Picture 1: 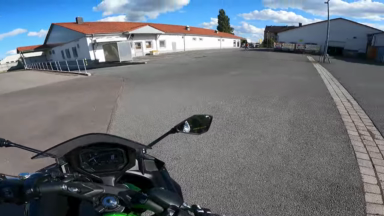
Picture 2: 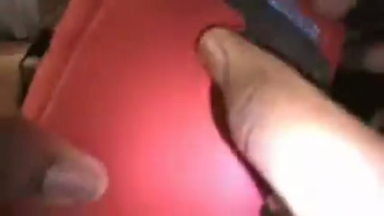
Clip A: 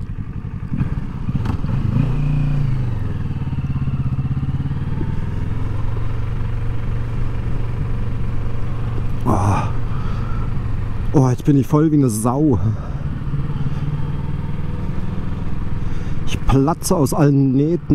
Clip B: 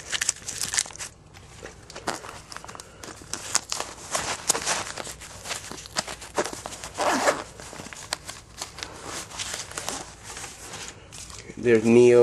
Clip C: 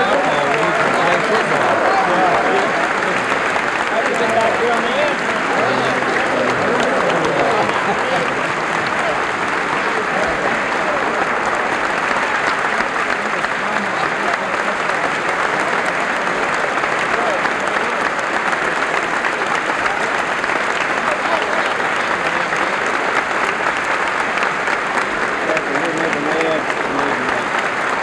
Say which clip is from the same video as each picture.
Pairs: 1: A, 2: B